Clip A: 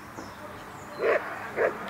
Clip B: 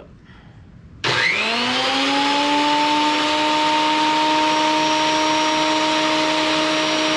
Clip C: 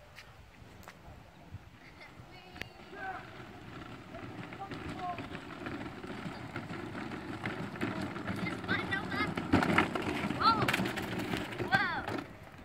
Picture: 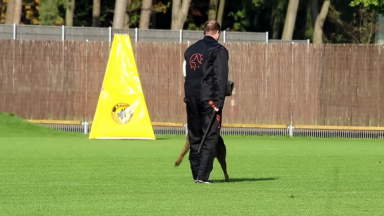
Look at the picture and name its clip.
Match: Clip A